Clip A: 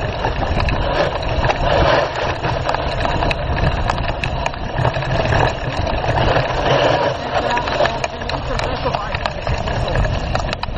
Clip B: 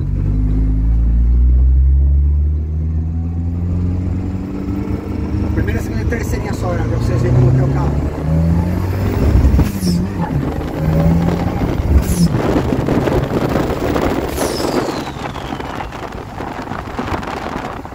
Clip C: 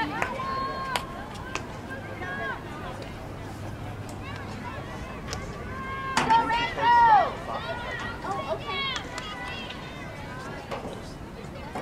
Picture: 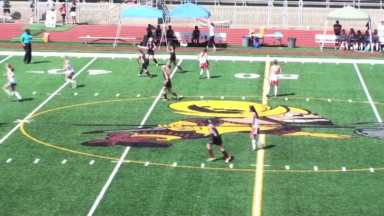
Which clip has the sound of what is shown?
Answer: C